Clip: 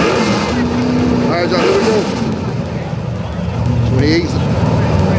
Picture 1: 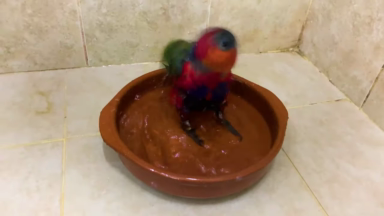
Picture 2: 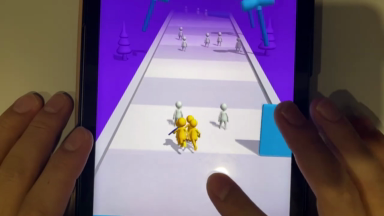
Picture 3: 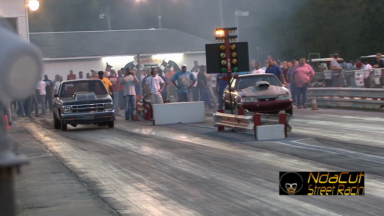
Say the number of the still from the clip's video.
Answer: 3